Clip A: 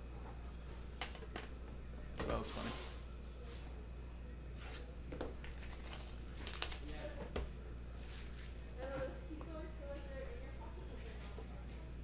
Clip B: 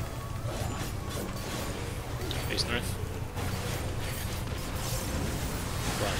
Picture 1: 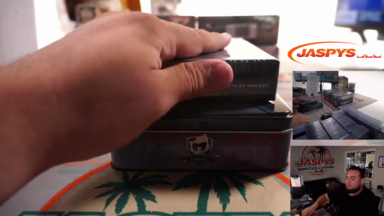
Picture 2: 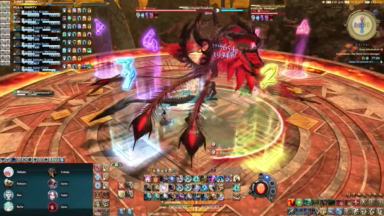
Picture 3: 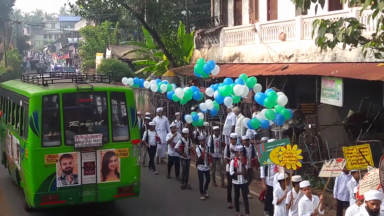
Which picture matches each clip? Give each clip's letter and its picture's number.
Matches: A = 1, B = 2